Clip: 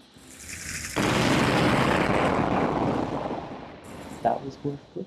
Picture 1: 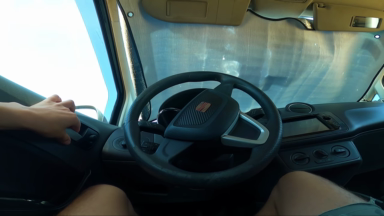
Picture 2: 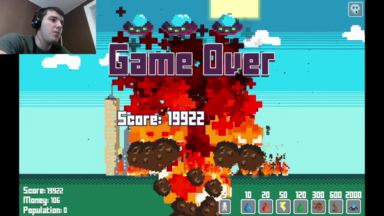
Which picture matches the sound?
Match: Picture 2